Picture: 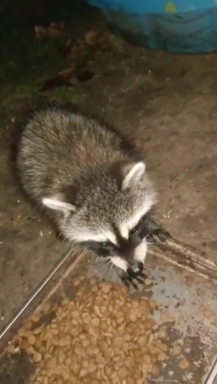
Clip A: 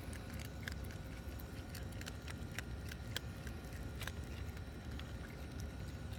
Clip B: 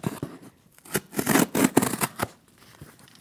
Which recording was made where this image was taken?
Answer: A